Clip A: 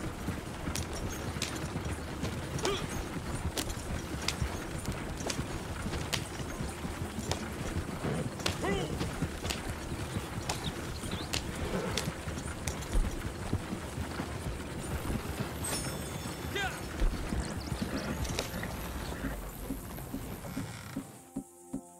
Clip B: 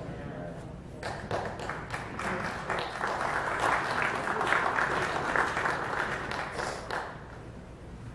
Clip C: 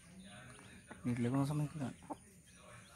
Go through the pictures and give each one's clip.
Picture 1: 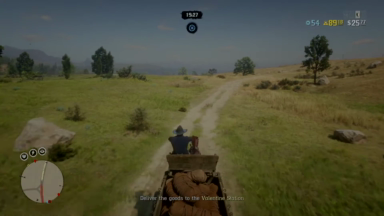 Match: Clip A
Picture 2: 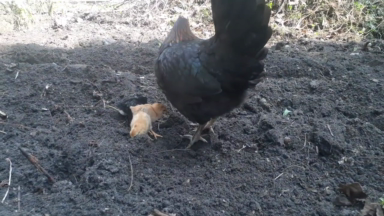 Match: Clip C